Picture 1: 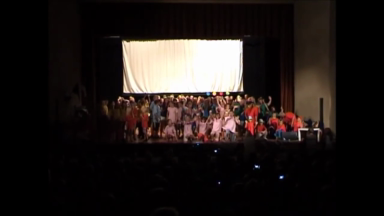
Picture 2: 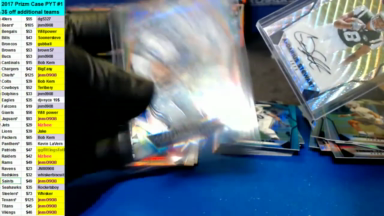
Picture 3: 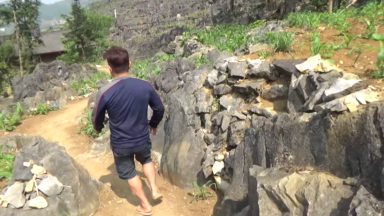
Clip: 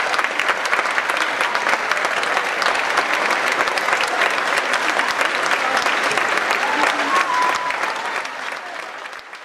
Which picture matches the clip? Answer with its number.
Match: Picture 1